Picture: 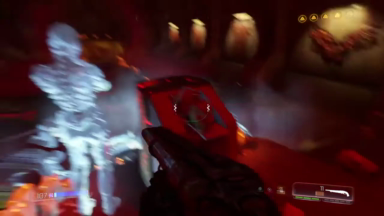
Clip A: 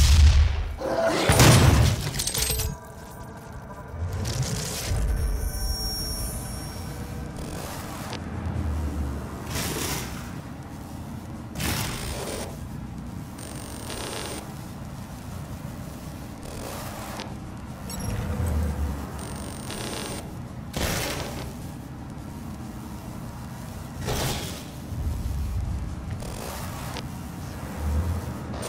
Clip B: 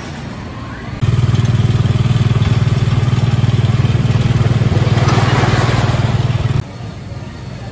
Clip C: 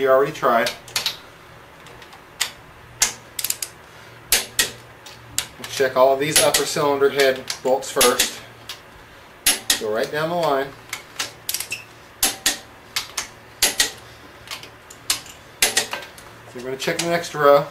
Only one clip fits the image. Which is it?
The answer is A